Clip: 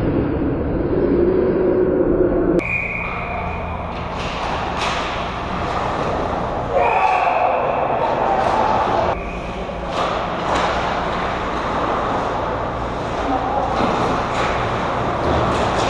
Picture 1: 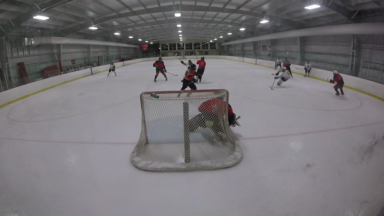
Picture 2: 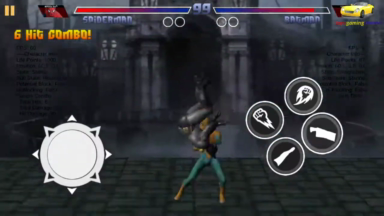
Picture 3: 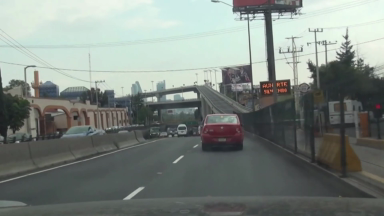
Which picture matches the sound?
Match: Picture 1